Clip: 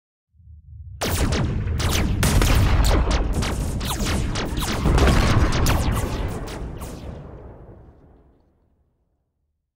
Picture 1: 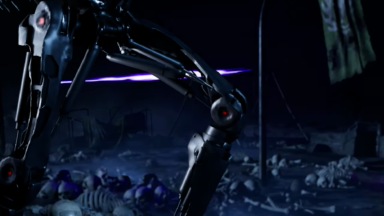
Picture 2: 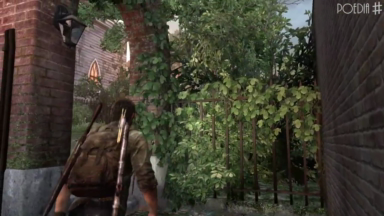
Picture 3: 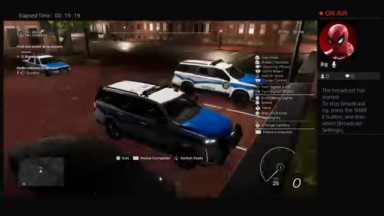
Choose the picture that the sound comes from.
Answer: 1